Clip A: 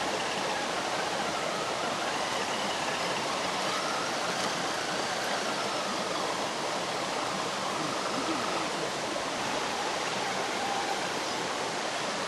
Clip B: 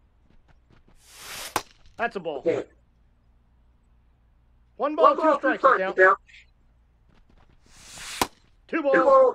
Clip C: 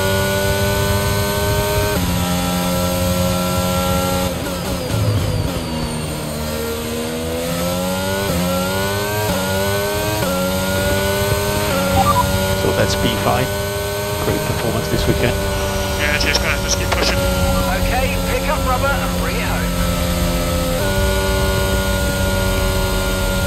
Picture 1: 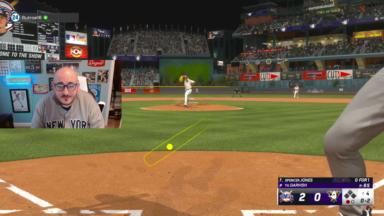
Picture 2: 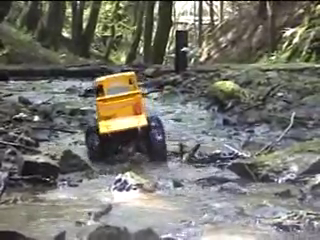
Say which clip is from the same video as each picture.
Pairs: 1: B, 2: A